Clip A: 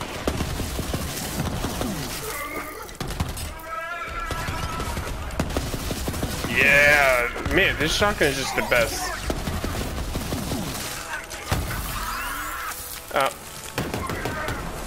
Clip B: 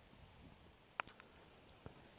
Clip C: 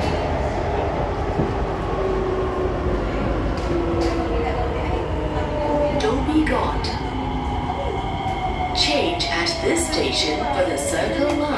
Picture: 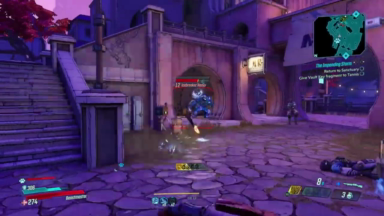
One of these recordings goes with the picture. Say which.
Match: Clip A